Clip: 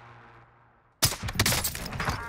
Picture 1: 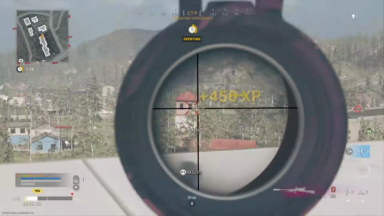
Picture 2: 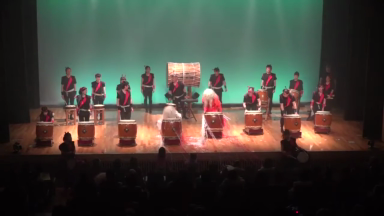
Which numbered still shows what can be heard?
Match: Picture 1